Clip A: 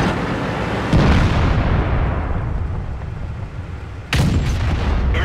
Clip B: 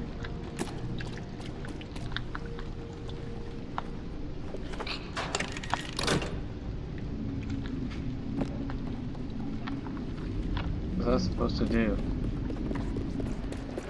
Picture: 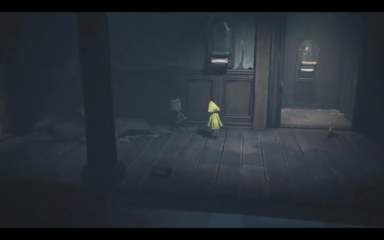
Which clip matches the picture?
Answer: B